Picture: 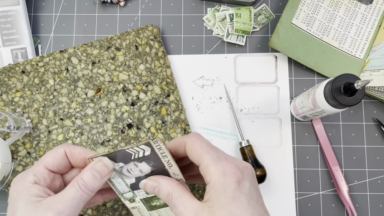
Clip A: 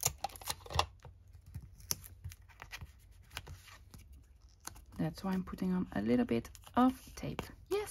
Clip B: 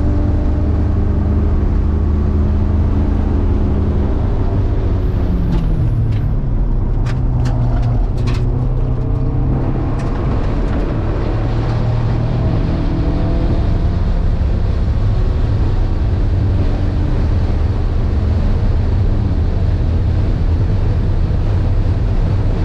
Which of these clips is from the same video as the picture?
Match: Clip A